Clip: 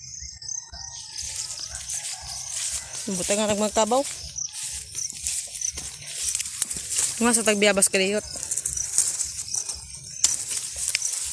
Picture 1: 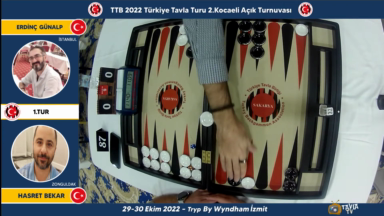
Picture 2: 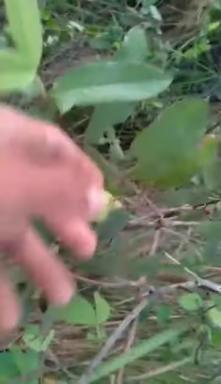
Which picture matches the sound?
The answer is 2